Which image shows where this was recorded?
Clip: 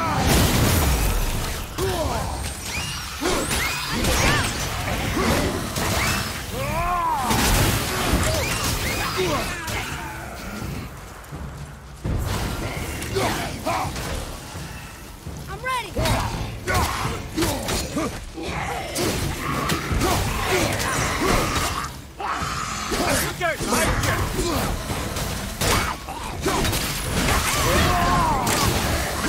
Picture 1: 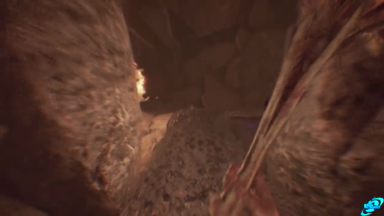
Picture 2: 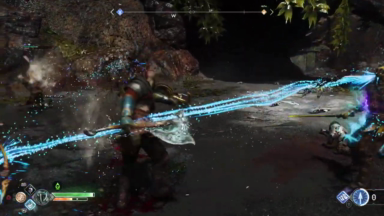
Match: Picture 2